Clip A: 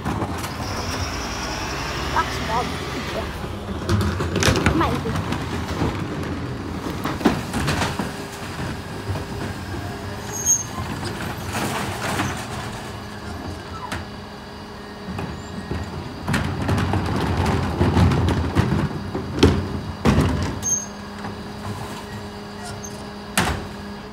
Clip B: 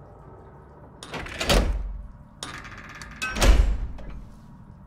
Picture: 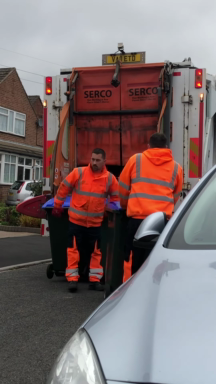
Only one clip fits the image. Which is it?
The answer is A